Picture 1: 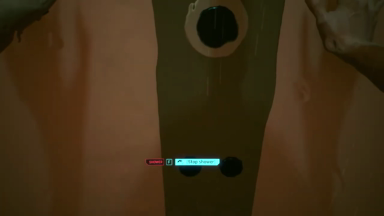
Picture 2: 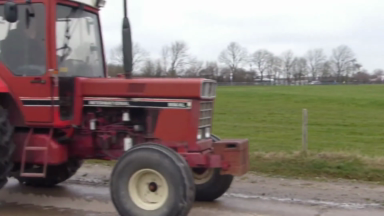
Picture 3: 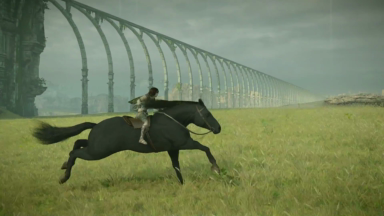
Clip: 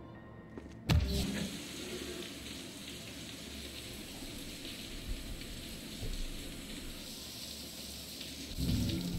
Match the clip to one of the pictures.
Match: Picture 1